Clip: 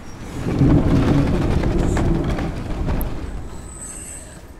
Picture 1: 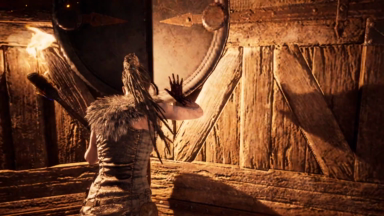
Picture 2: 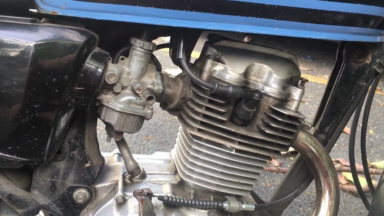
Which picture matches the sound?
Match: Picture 1